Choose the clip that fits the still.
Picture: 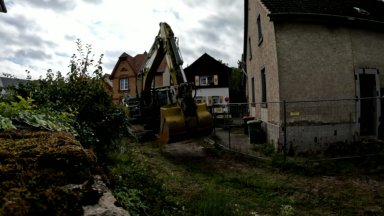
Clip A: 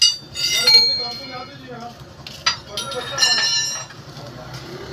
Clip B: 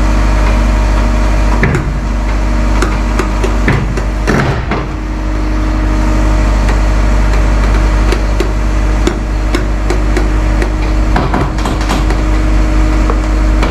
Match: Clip B